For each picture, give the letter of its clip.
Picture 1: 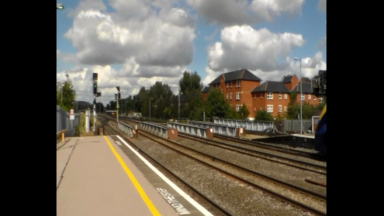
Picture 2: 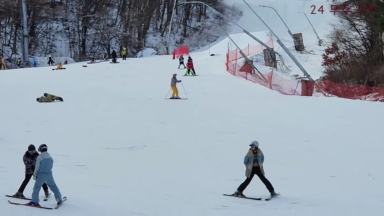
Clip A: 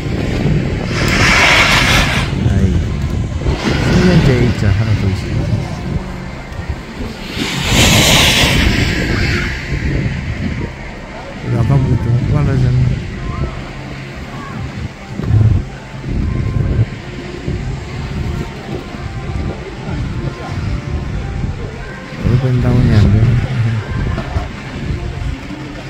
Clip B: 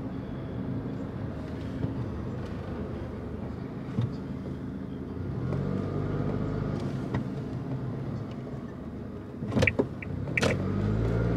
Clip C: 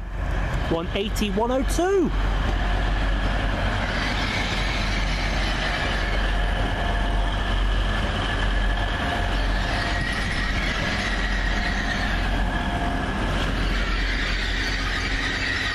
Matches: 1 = C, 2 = A